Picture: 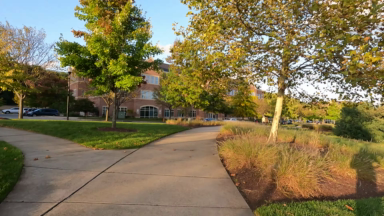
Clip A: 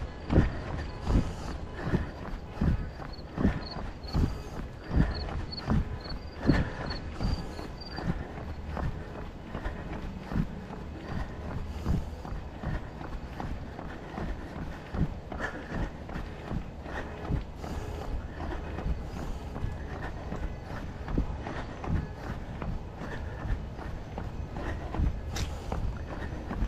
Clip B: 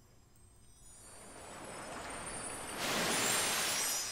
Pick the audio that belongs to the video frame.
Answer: A